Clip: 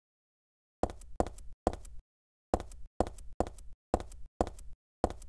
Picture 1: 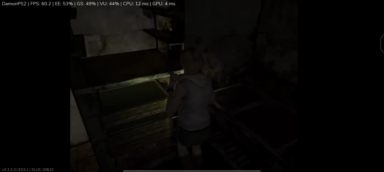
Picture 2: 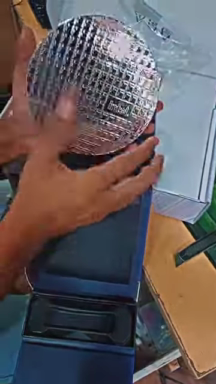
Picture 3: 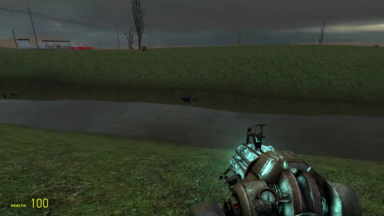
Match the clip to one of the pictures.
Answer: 1